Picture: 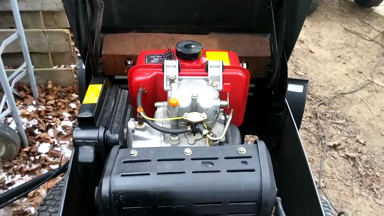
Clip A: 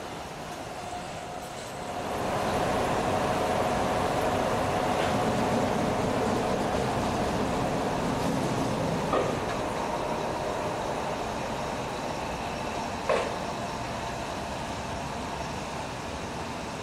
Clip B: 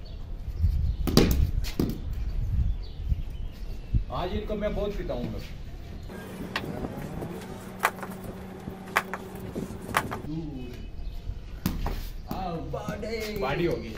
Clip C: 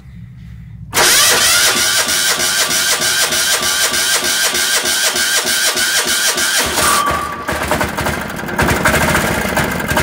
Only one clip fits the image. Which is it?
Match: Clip C